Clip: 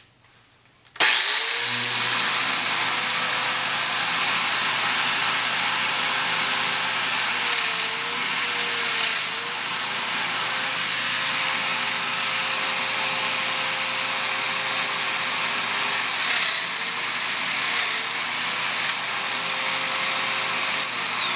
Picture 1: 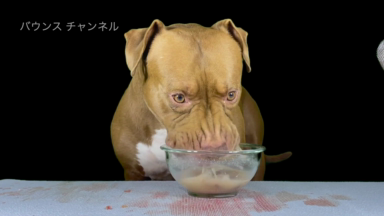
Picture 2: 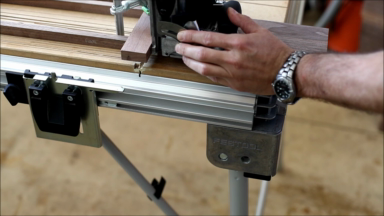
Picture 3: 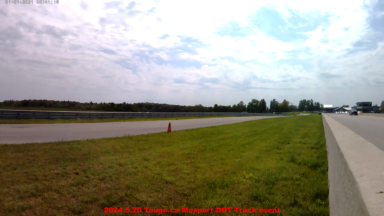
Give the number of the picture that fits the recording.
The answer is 2